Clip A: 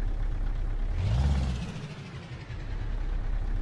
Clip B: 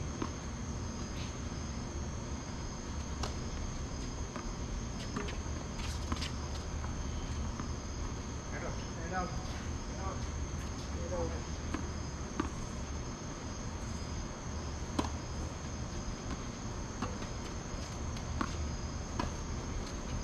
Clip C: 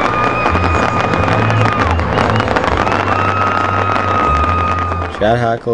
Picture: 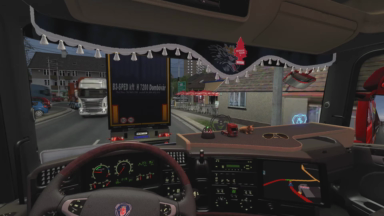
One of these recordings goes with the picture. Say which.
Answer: A